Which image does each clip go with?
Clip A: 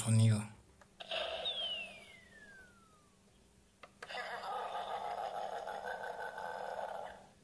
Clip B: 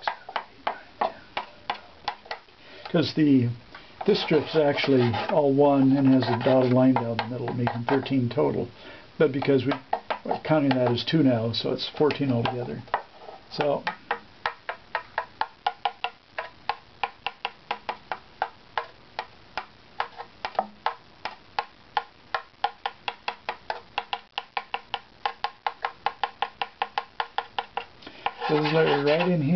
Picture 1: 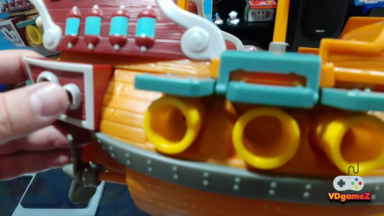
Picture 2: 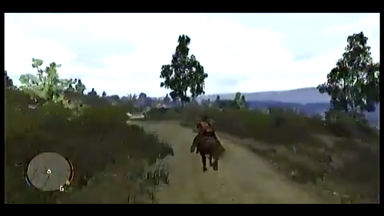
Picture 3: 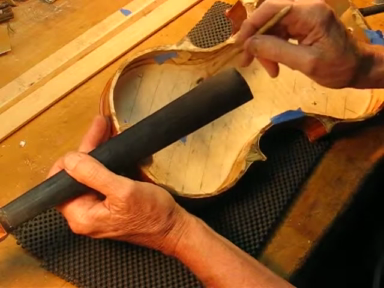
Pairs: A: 1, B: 3